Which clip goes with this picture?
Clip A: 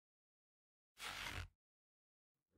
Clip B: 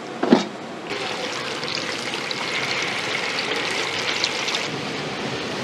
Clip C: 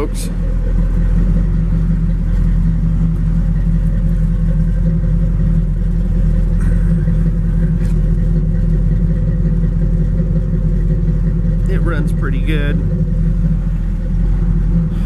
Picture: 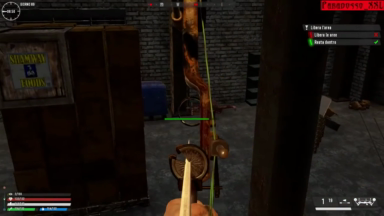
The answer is A